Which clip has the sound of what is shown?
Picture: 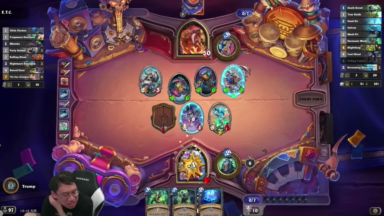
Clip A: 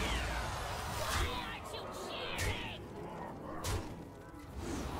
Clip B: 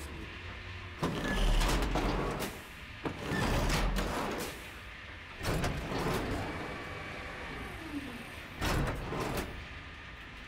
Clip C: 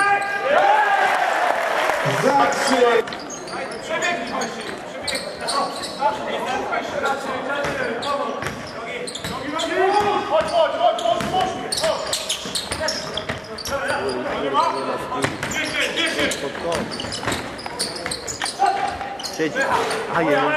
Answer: A